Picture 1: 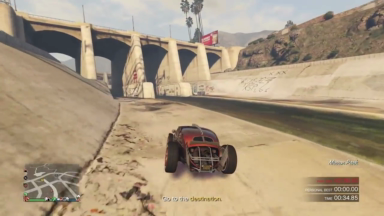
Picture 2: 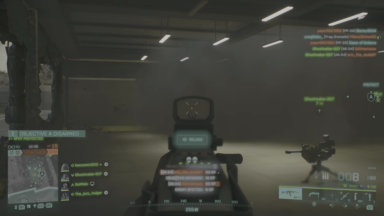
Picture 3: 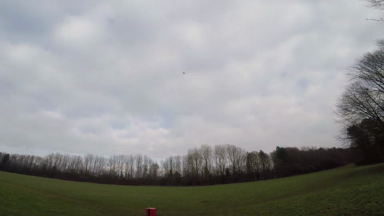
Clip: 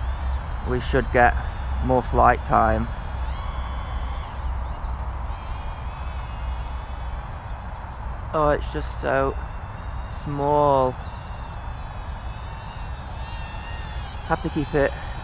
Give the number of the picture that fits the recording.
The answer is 3